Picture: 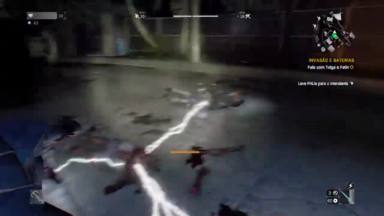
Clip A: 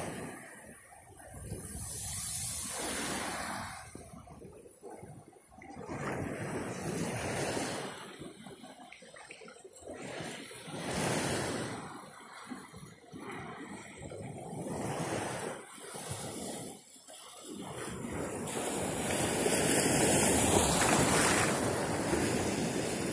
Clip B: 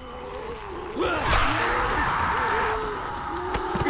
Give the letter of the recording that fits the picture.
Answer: B